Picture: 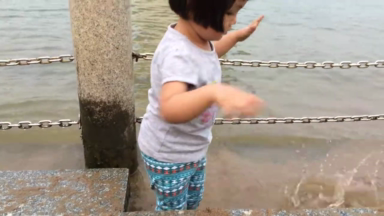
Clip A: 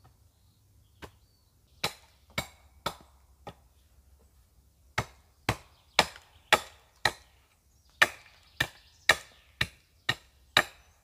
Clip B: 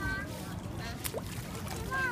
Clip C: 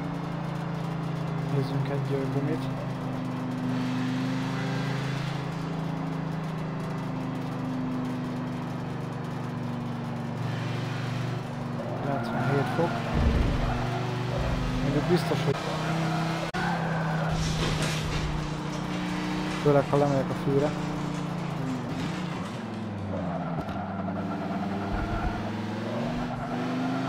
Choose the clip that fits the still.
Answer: B